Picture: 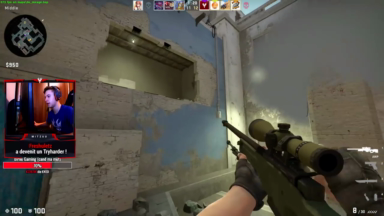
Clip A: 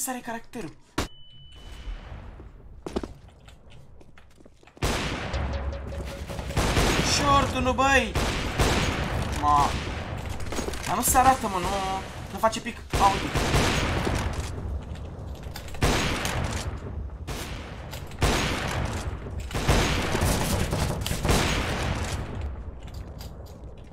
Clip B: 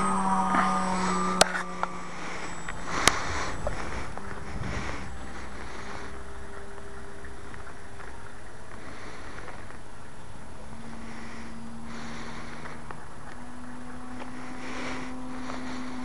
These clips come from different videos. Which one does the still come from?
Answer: A